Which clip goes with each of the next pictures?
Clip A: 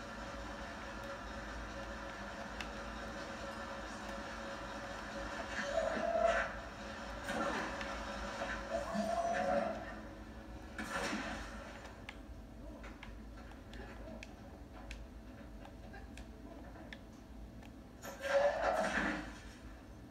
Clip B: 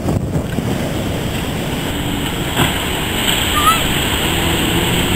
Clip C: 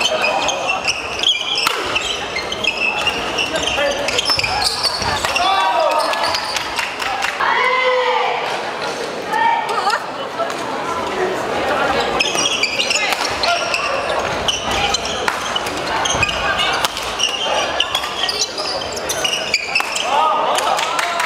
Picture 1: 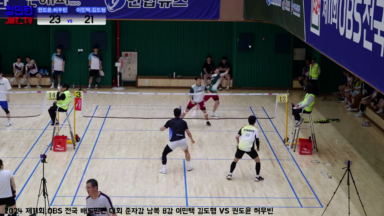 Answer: C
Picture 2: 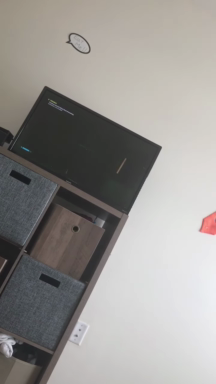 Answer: A